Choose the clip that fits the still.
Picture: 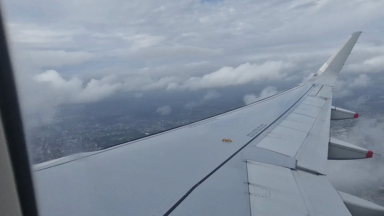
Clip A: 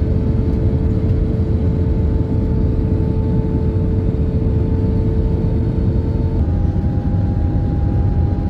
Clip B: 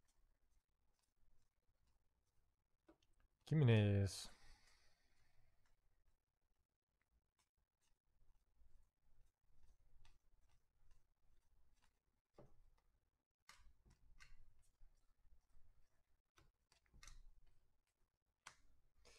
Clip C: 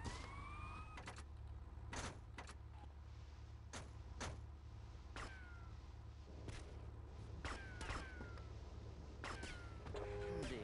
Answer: A